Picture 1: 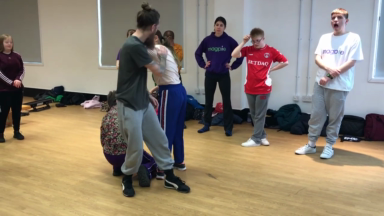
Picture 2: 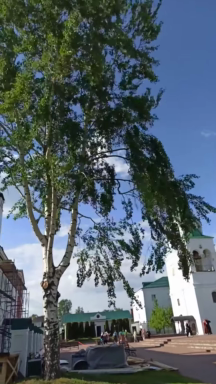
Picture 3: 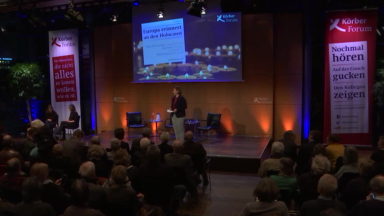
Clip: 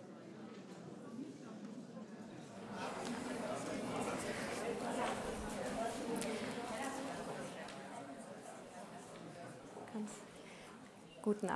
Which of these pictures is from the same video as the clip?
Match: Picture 3